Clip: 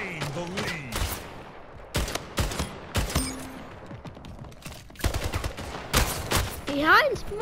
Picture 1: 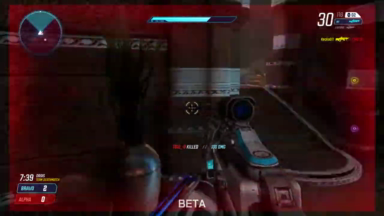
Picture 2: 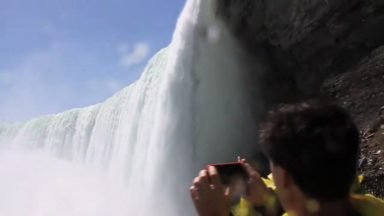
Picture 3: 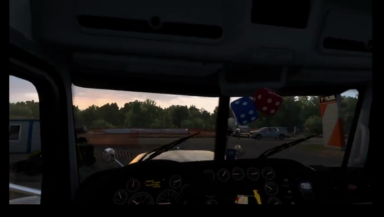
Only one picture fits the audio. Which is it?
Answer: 1